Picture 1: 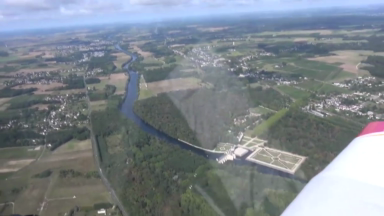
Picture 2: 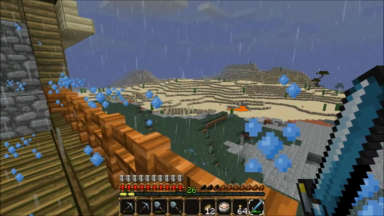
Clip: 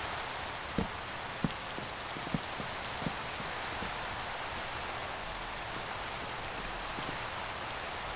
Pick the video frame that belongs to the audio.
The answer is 2